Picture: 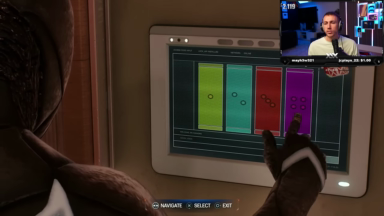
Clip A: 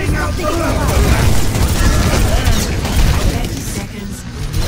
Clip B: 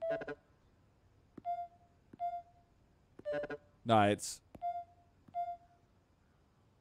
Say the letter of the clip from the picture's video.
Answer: B